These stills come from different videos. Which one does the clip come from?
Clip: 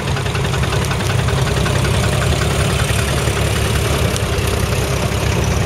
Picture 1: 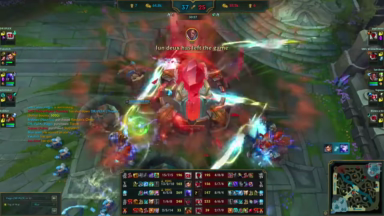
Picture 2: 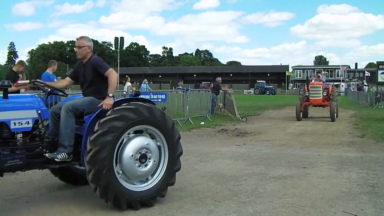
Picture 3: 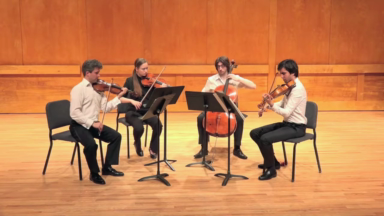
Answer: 2